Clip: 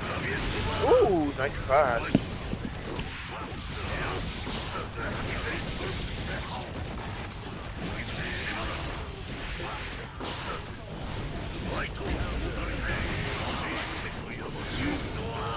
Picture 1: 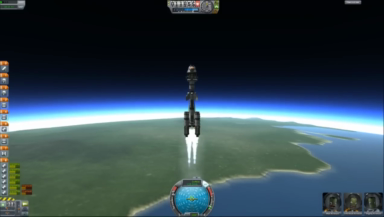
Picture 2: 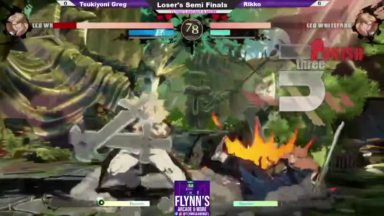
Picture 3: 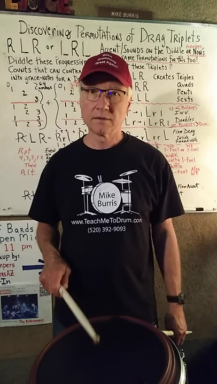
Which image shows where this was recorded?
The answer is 2